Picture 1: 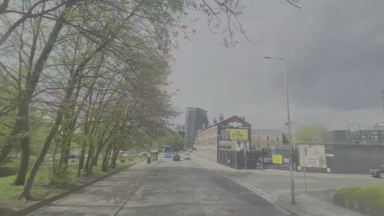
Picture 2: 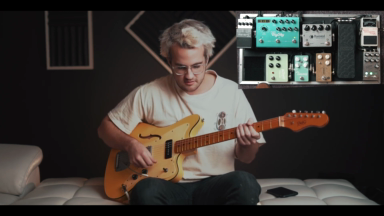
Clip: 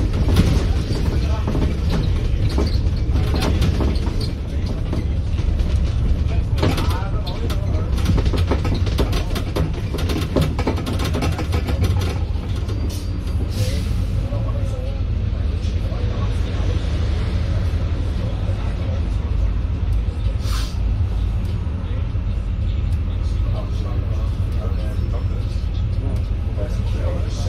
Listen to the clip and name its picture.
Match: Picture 1